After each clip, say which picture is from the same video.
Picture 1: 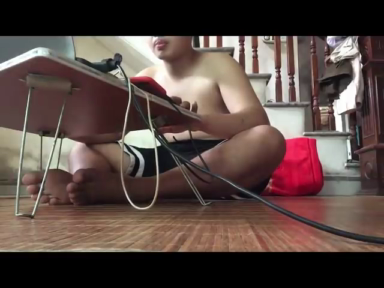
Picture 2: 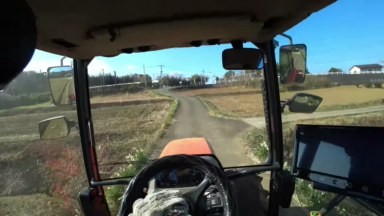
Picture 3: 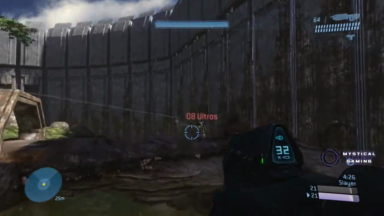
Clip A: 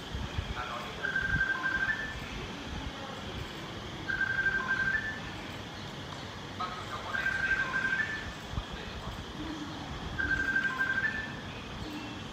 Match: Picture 1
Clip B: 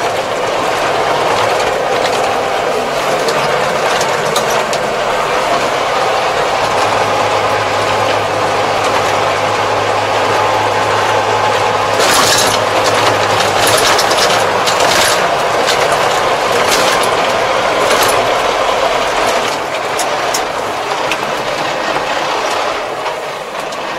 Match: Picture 2